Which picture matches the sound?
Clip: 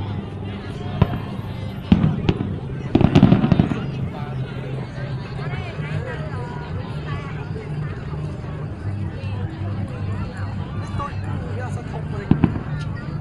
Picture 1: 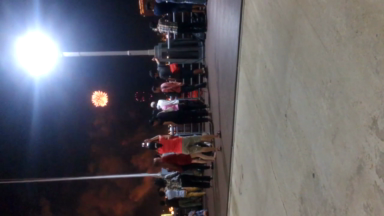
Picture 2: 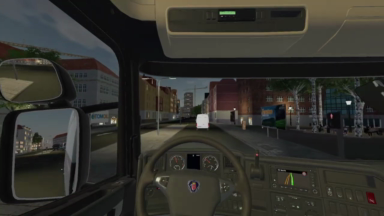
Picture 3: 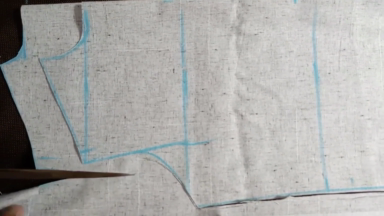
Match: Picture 1